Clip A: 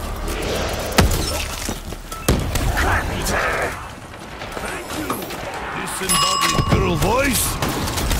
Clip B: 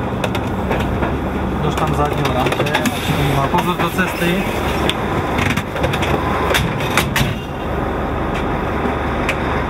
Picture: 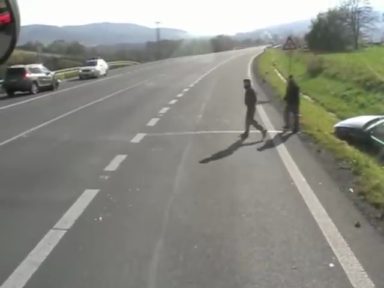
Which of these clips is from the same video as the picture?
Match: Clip B